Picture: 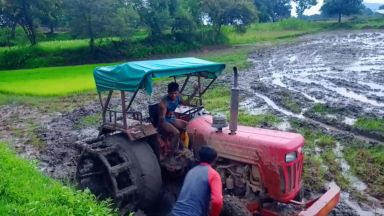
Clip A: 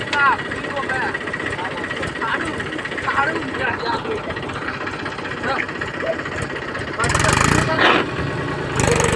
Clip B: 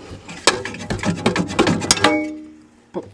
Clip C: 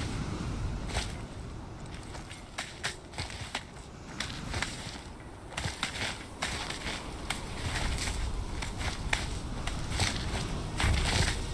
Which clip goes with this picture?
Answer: A